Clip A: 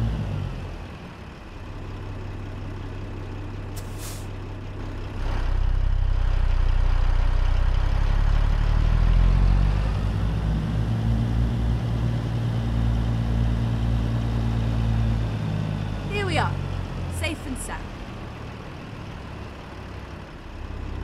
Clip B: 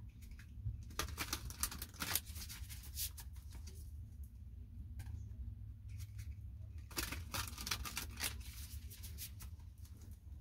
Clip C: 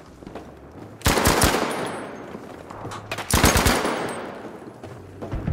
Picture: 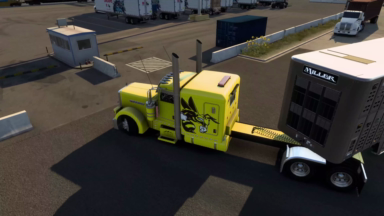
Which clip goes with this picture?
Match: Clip A